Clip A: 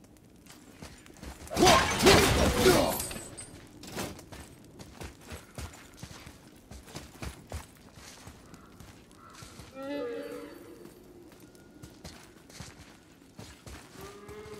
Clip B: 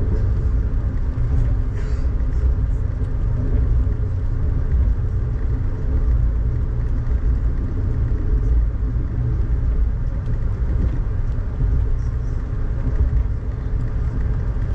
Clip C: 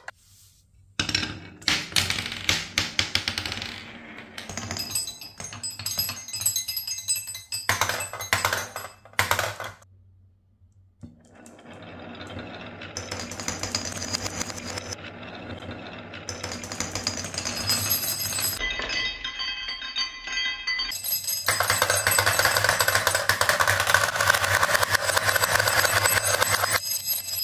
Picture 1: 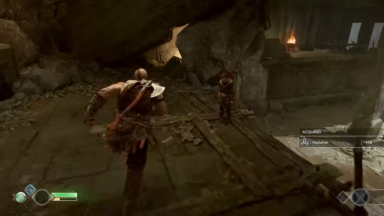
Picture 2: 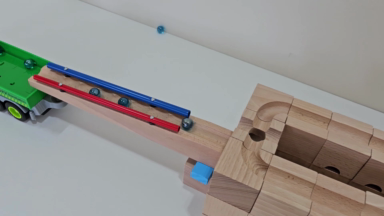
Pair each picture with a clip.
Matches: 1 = A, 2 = C